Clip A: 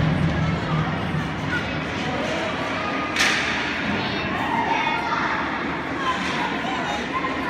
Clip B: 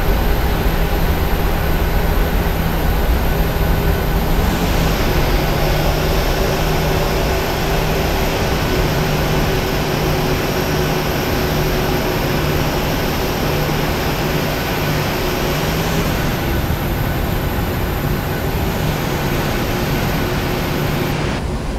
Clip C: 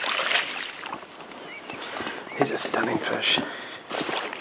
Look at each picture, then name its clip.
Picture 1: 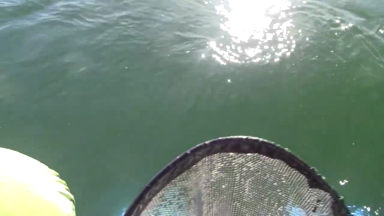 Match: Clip C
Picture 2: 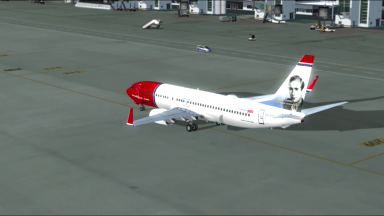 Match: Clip B